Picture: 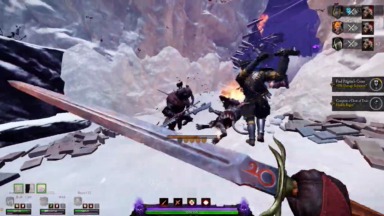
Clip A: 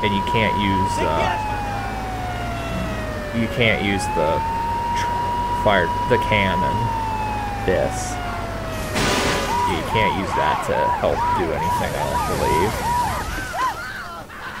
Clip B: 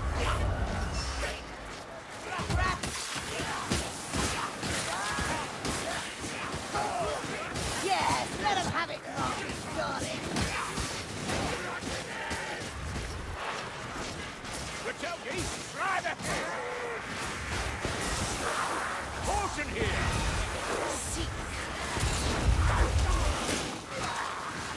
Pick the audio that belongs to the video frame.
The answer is B